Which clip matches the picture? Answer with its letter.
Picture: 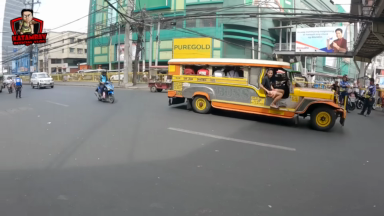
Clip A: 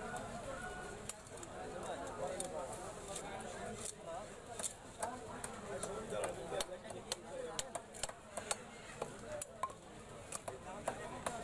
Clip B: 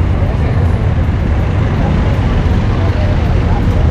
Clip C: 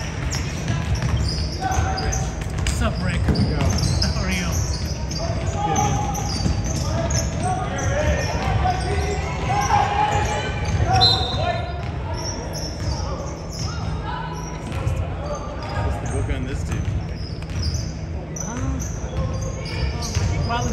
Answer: B